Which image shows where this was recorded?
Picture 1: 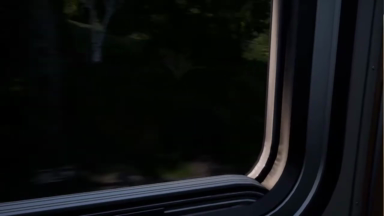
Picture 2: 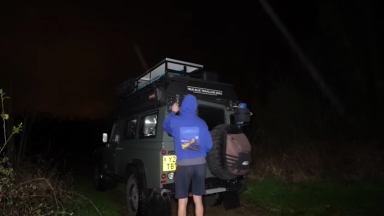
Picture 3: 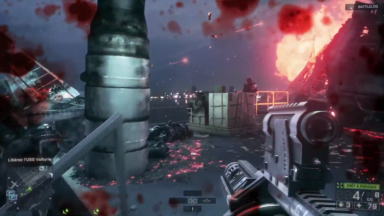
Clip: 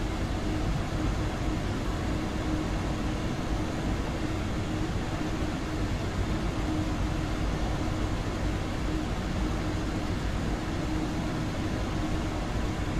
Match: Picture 1